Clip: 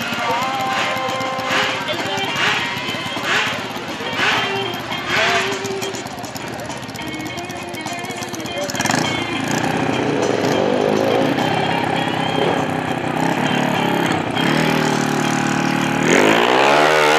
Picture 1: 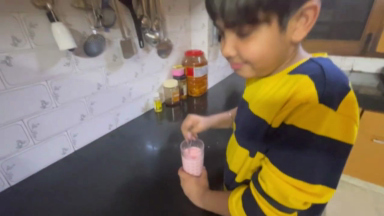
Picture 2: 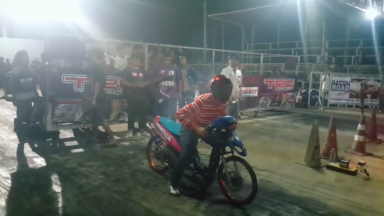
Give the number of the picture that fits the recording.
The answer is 2